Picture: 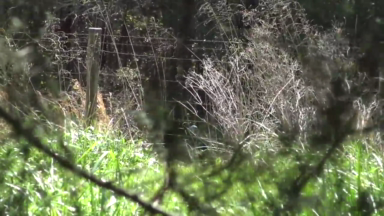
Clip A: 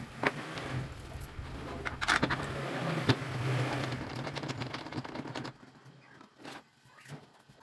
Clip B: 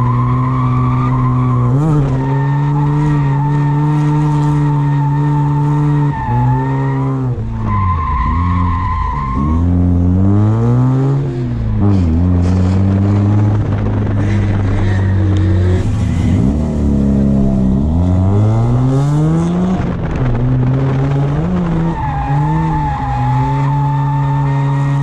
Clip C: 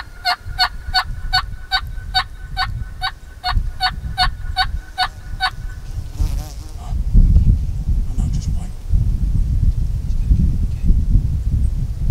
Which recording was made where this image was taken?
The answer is C